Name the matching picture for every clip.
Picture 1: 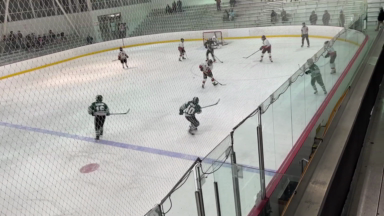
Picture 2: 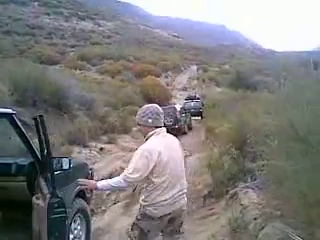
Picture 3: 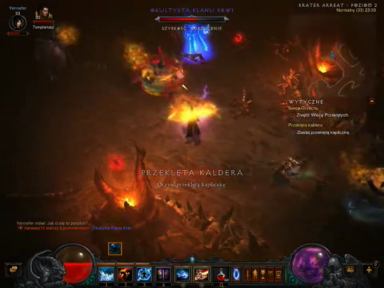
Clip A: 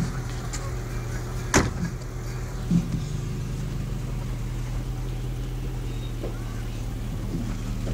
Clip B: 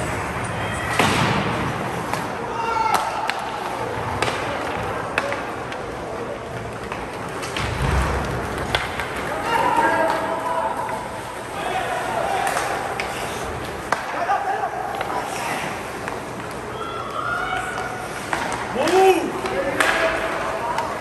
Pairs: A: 2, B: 1